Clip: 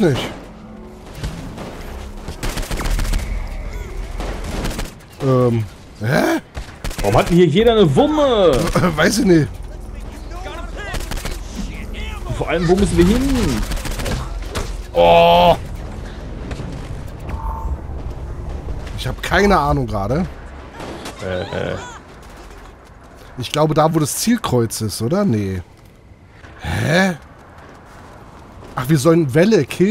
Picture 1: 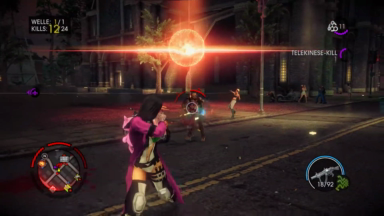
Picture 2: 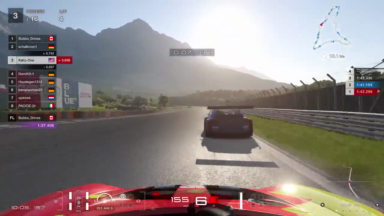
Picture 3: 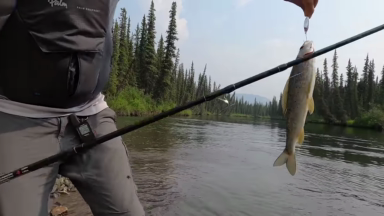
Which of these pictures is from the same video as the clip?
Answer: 1